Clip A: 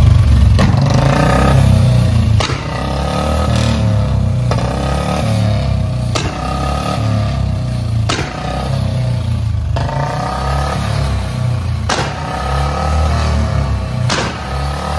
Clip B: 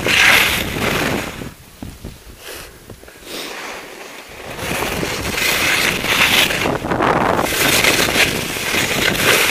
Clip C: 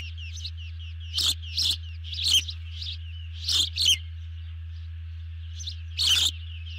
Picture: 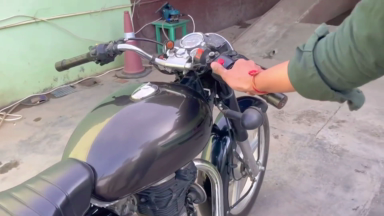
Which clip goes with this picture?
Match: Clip A